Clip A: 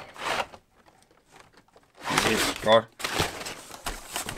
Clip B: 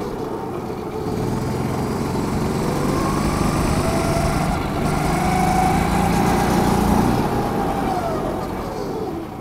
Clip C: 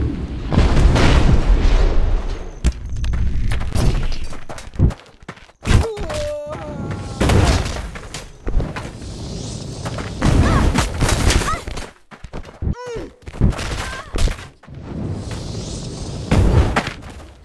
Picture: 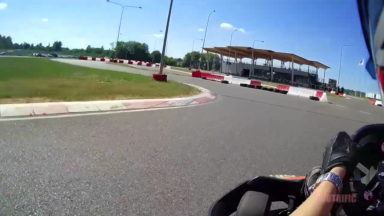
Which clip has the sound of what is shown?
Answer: B